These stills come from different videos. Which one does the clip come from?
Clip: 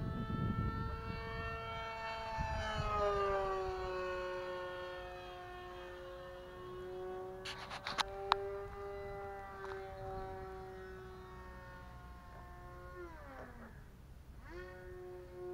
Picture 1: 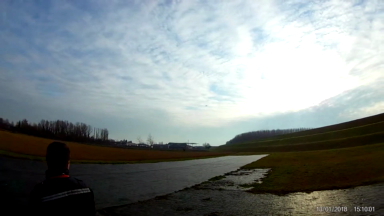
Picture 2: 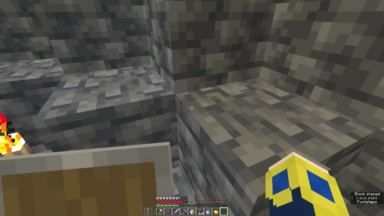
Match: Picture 1